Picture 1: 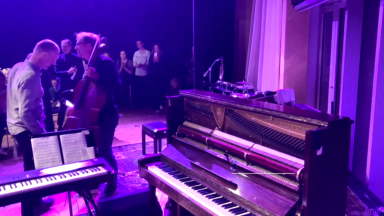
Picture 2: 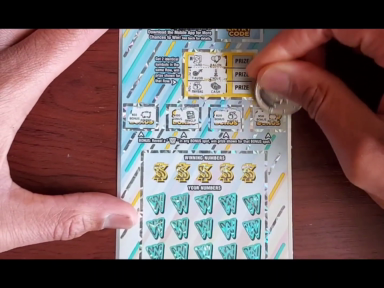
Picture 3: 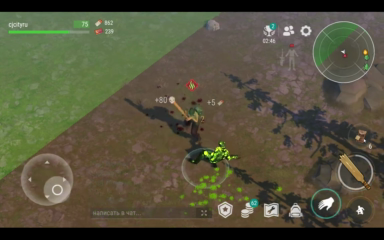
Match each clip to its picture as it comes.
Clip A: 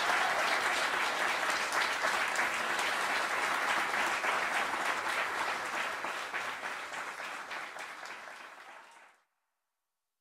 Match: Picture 1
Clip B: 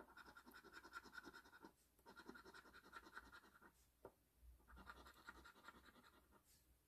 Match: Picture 2